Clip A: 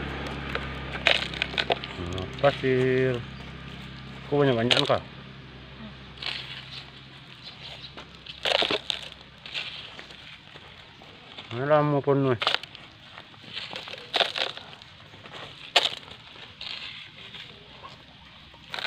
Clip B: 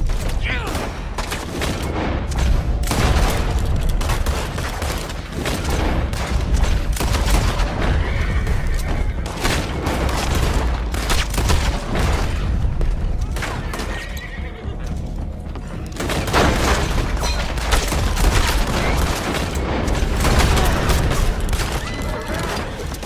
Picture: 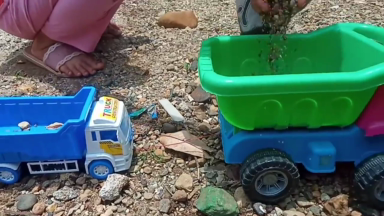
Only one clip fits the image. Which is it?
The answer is A